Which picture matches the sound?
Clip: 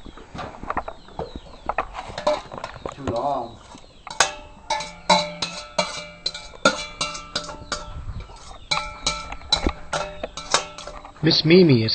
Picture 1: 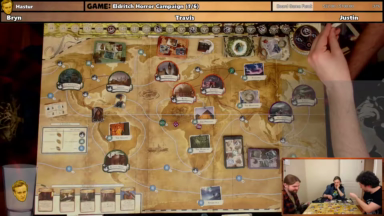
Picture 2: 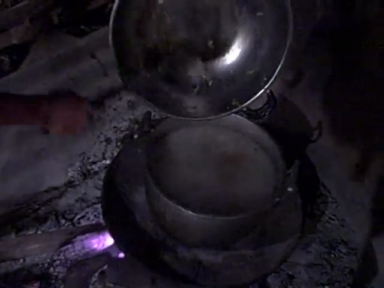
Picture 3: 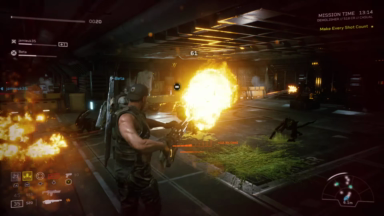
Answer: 2